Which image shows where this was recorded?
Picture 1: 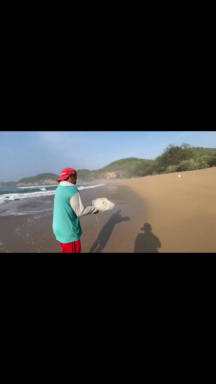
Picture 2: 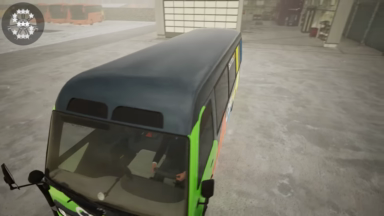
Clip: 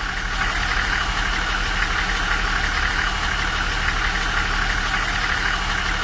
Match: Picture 2